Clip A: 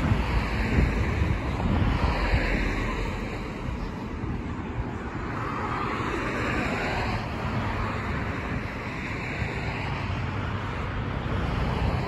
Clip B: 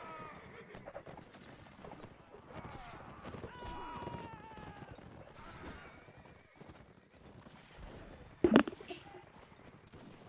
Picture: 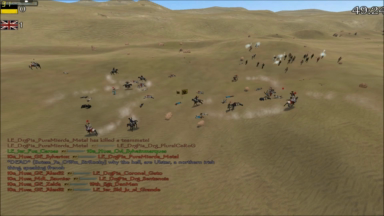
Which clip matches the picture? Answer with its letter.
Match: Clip B